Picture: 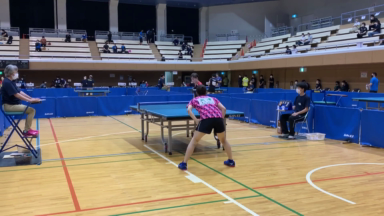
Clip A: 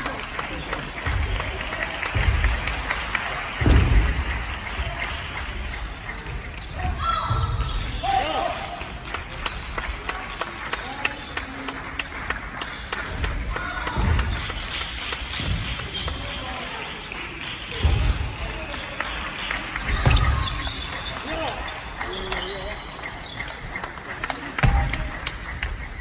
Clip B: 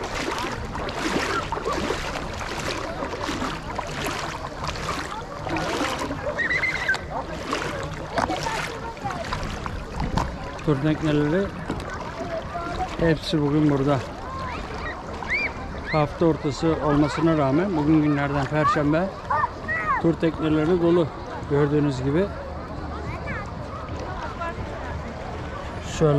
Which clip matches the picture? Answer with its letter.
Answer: A